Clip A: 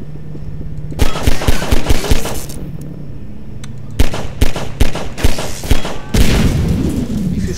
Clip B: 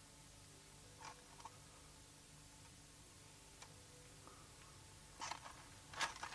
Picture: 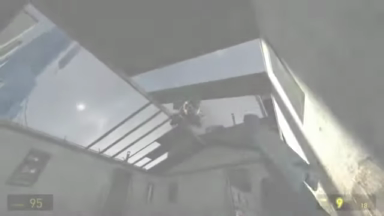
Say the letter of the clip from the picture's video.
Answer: A